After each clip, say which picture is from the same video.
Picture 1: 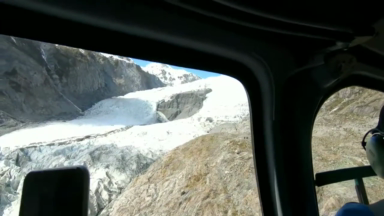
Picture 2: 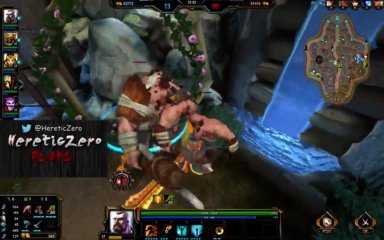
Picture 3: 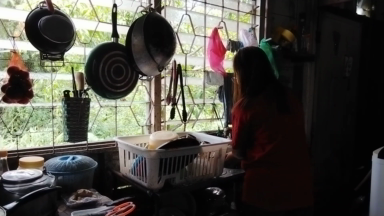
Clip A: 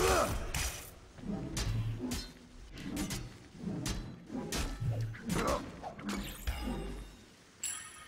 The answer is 2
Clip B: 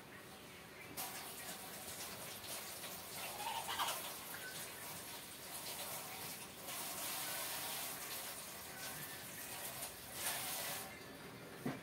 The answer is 3